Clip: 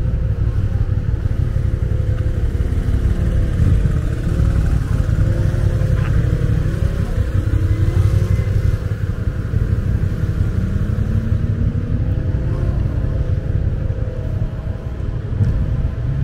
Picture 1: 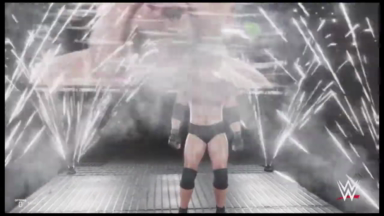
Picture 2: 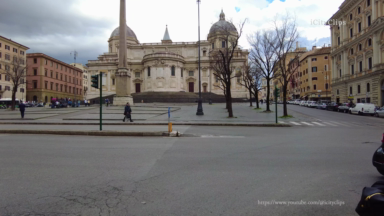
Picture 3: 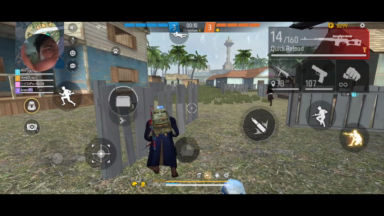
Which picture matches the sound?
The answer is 2